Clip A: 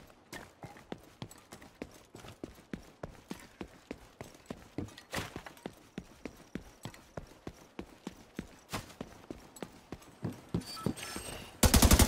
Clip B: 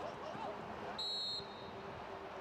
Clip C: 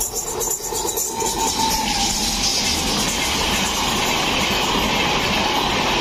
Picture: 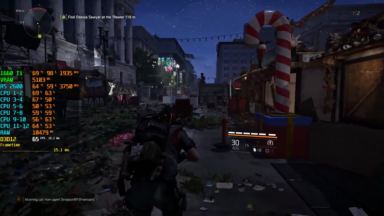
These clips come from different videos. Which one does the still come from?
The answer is A